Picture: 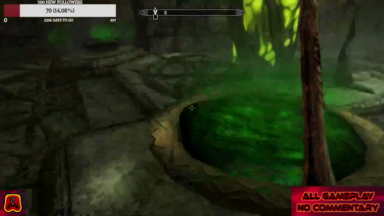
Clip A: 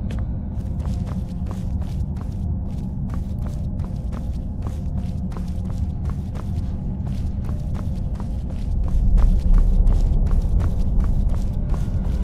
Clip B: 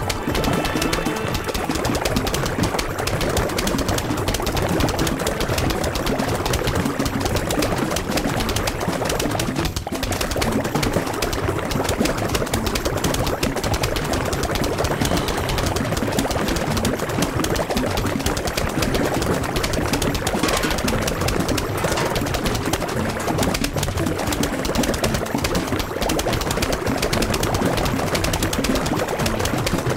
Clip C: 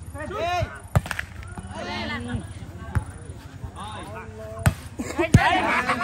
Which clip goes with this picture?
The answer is A